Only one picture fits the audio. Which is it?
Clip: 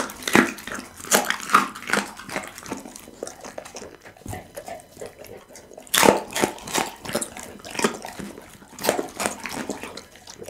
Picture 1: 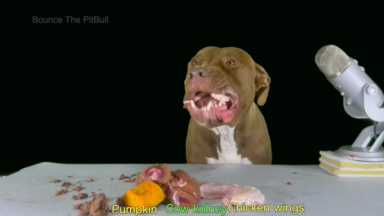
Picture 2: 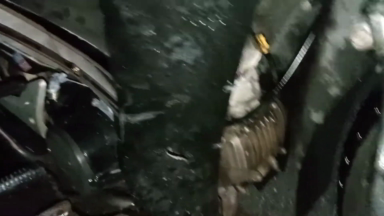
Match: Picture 1